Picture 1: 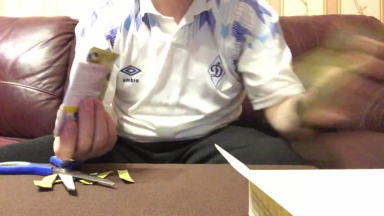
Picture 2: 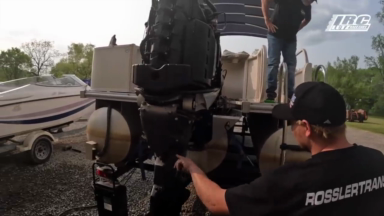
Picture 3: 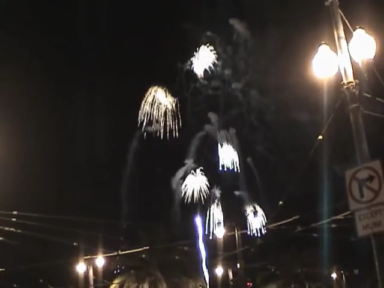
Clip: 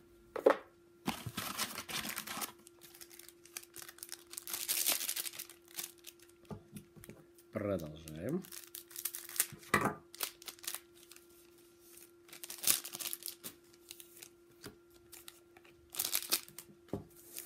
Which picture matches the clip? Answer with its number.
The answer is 1